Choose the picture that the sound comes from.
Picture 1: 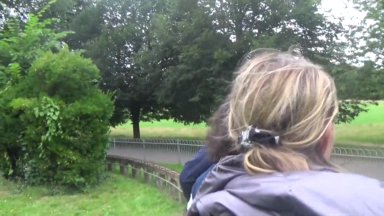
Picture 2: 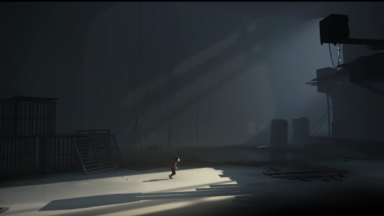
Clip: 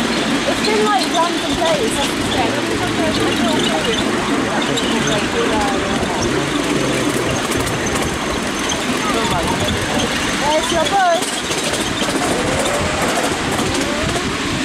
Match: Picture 1